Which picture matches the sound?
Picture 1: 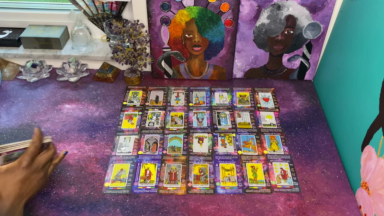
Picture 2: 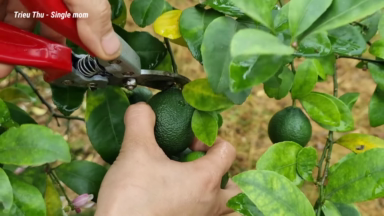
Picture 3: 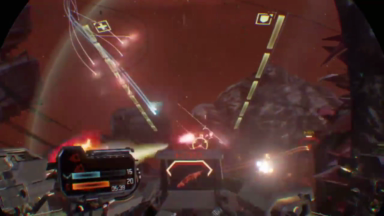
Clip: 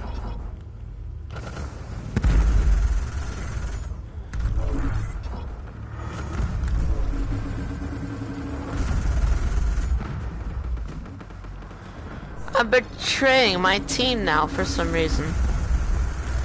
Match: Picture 3